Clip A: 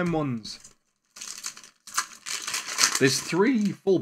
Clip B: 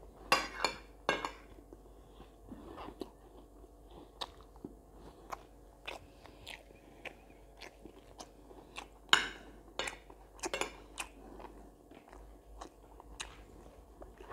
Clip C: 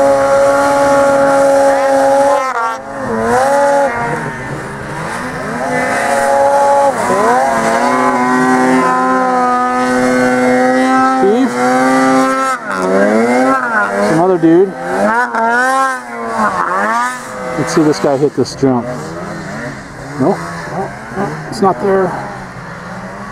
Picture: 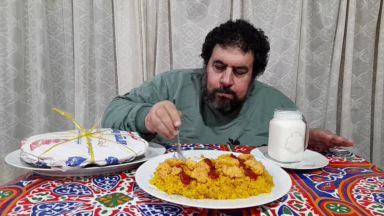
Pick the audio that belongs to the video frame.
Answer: B